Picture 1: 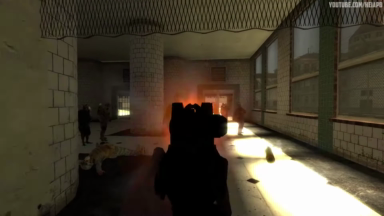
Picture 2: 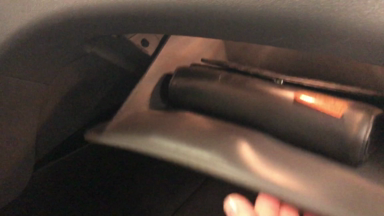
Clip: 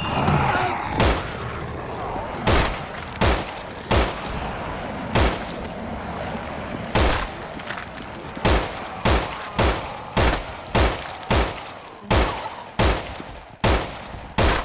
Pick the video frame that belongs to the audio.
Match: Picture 1